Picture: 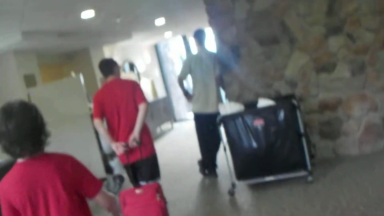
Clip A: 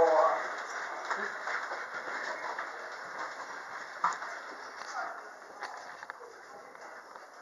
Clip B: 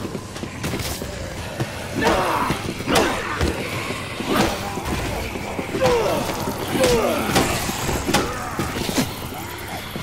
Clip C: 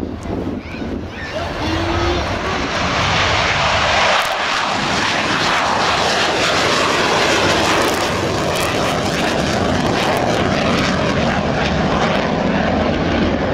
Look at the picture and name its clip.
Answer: A